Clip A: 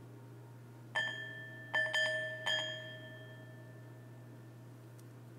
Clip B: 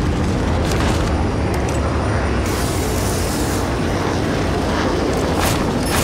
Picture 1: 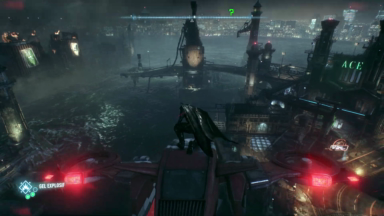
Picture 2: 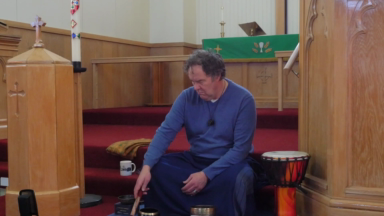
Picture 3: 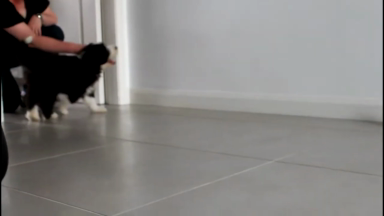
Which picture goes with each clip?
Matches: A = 2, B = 1